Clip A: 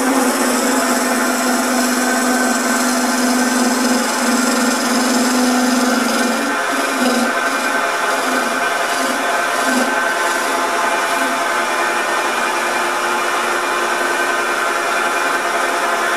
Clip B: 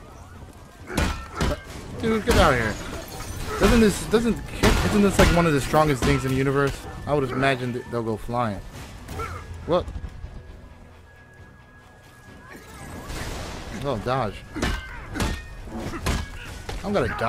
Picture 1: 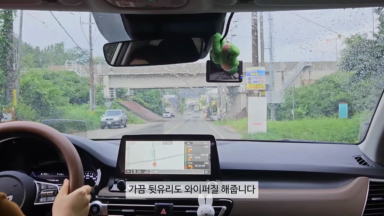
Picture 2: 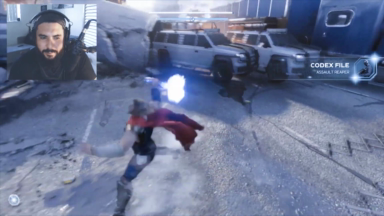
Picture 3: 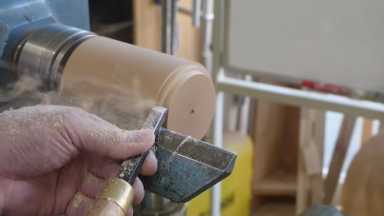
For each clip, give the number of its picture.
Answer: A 3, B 2